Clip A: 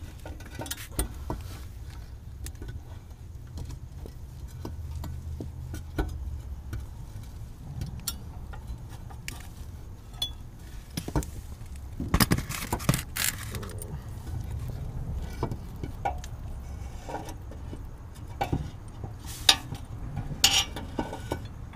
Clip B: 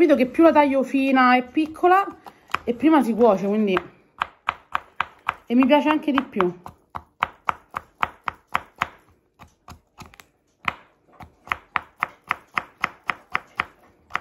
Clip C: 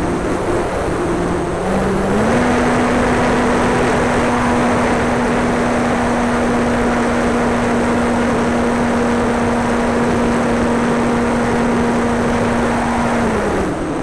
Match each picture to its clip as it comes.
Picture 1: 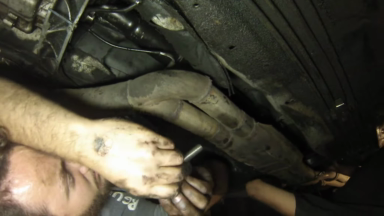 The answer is A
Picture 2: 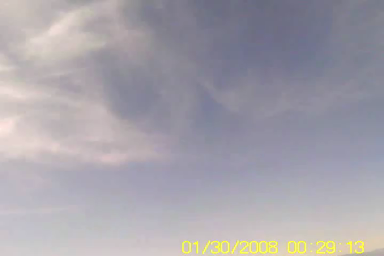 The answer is C